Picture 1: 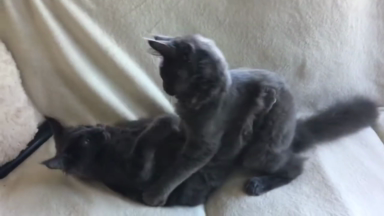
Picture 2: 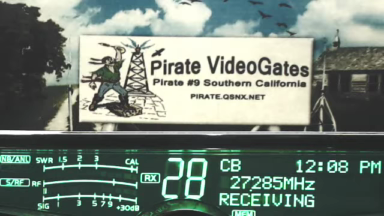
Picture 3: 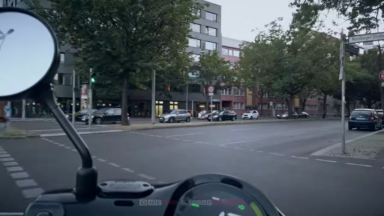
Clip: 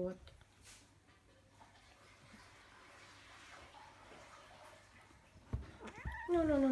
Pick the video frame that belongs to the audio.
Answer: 1